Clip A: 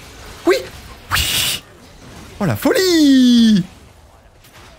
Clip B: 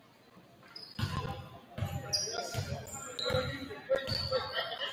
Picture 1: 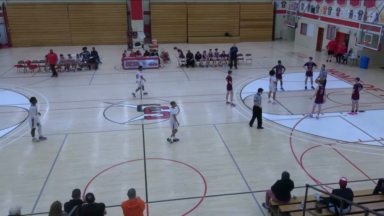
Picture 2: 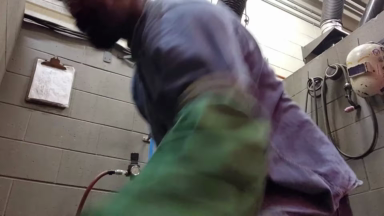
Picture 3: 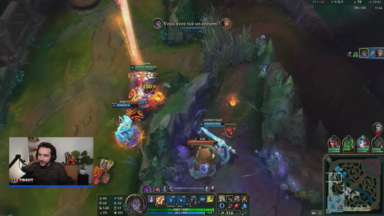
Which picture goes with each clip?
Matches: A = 3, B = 1